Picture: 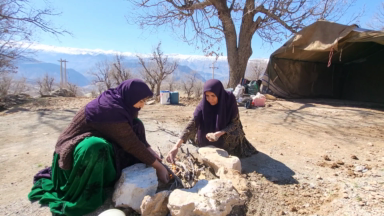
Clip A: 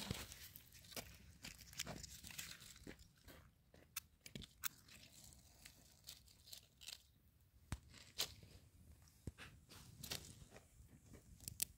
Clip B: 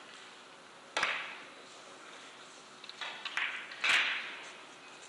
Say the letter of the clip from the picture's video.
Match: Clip A